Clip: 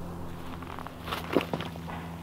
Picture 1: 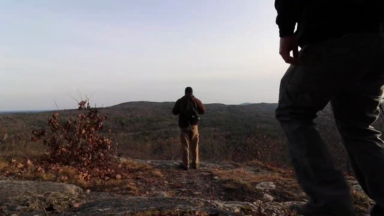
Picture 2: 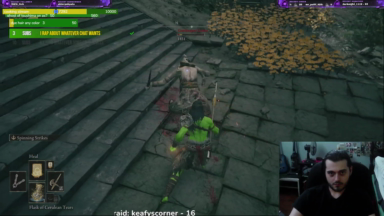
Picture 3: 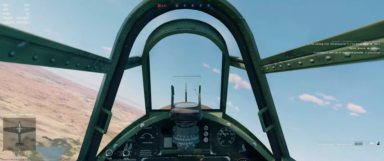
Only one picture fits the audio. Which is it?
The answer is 1